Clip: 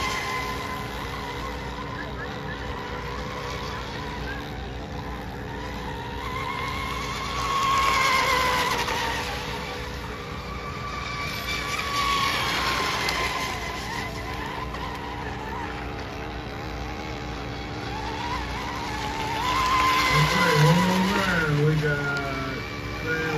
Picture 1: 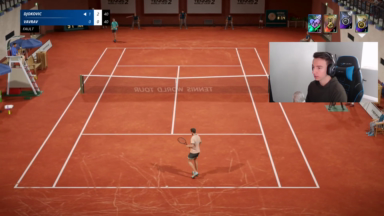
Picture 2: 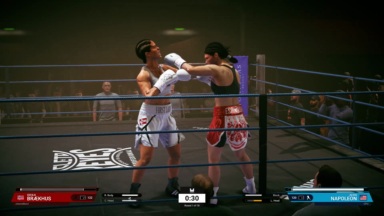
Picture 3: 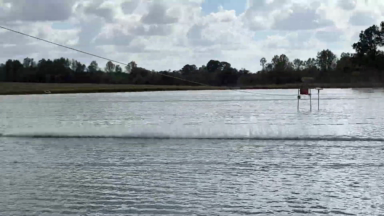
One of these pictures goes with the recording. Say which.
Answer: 3